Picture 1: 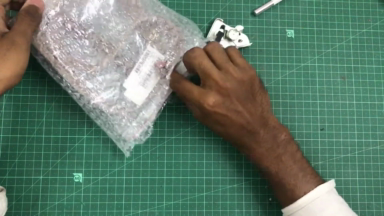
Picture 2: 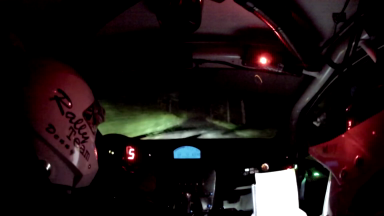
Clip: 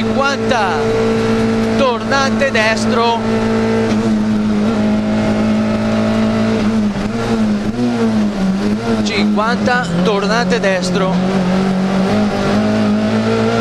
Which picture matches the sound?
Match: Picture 2